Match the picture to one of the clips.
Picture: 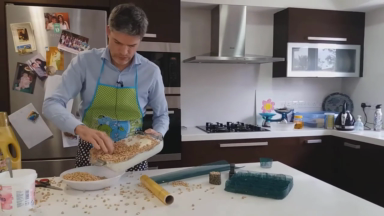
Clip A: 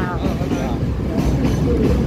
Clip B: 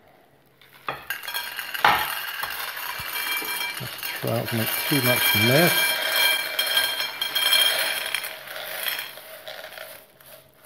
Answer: B